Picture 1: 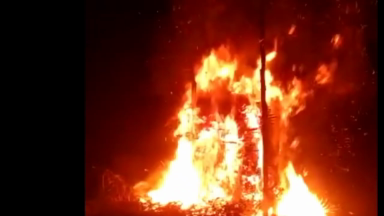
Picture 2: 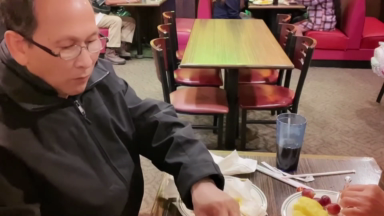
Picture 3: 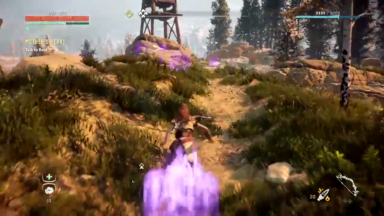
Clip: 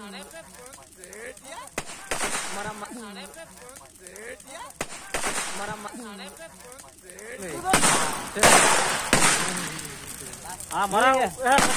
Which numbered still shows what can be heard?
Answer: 1